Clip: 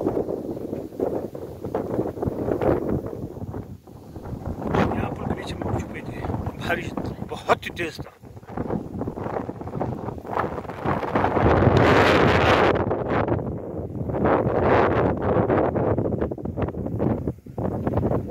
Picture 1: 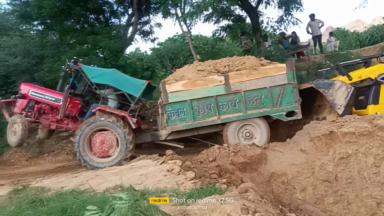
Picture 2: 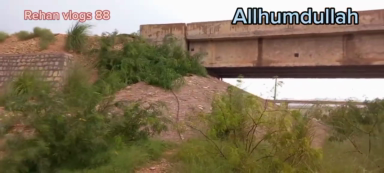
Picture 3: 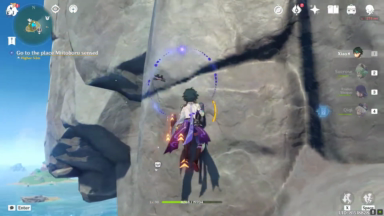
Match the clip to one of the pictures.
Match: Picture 2